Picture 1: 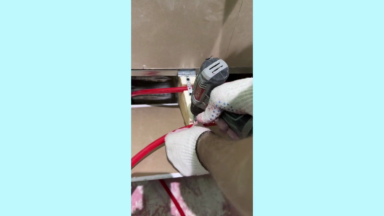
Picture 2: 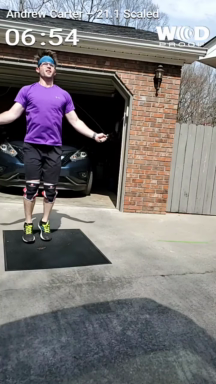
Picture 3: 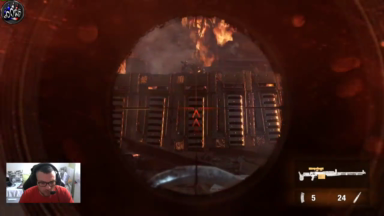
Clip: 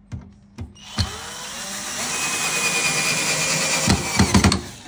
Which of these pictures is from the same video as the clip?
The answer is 1